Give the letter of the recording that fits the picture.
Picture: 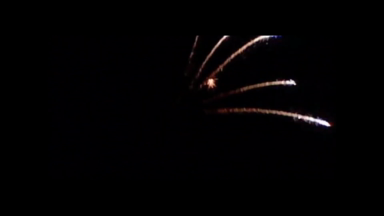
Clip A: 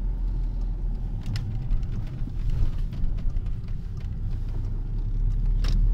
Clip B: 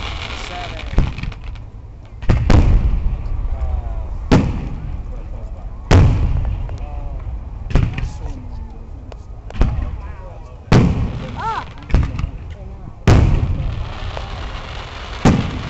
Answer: B